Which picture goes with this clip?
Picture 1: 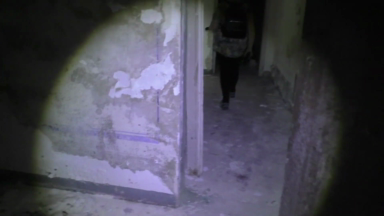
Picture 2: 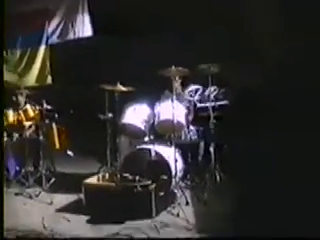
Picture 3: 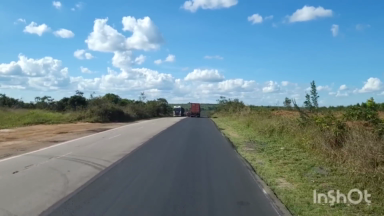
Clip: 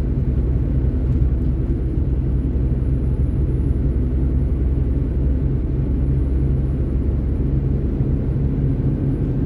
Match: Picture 3